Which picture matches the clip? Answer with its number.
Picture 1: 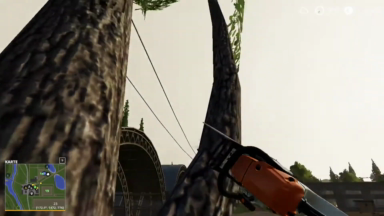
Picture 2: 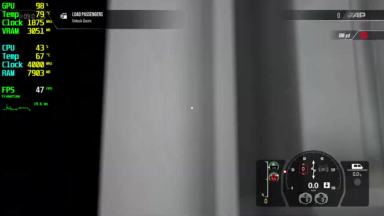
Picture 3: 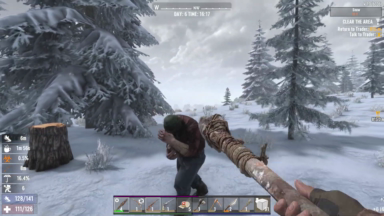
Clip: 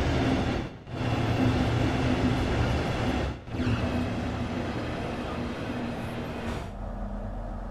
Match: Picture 2